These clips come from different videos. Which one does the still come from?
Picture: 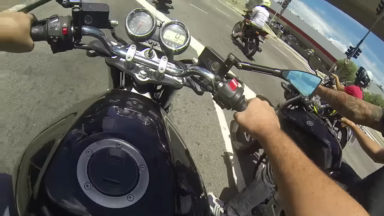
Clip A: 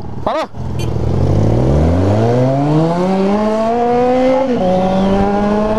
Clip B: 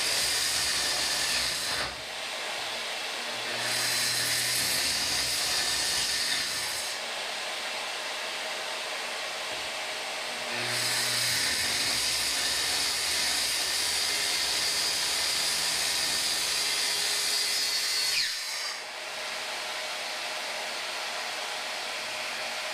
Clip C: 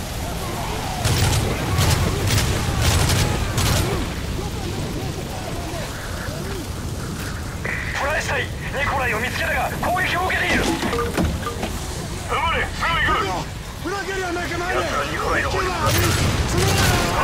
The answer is A